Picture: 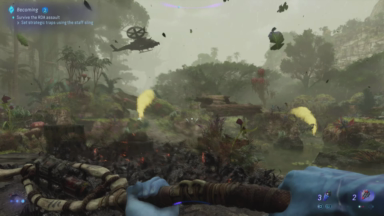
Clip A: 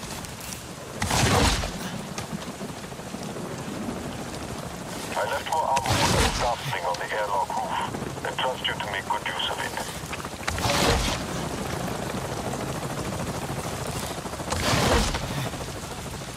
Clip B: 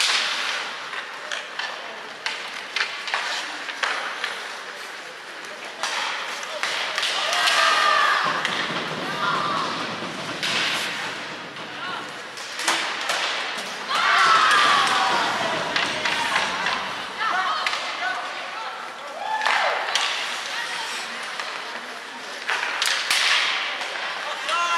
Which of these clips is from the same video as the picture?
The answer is A